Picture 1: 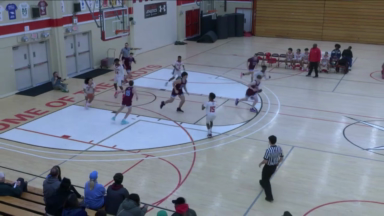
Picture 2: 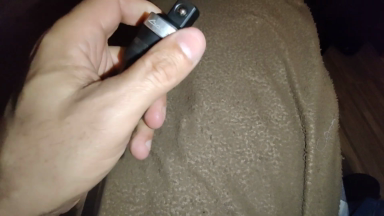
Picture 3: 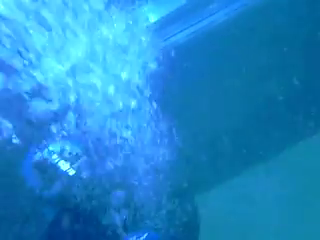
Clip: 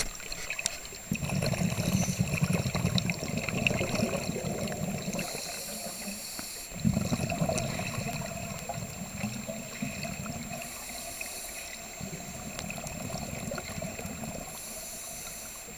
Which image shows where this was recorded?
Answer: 3